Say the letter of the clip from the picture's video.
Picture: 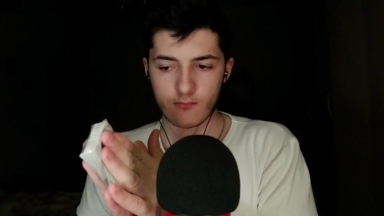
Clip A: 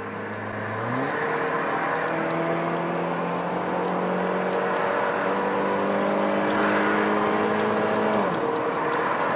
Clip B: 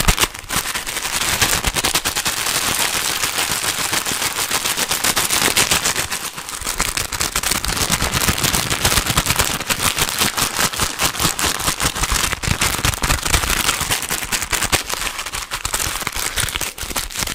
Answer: B